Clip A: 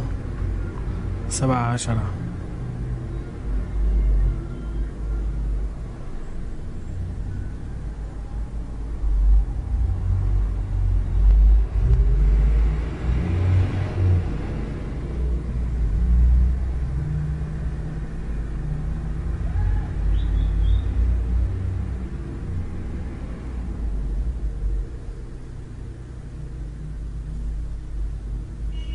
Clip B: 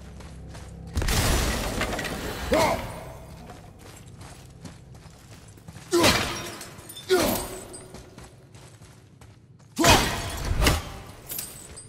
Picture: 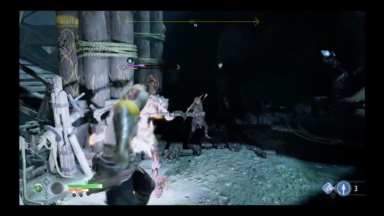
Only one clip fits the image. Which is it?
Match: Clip B